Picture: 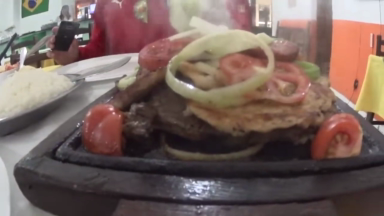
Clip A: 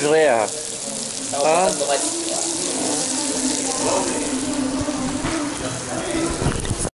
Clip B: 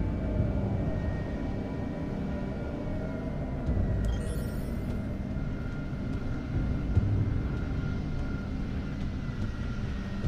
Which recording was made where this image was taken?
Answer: A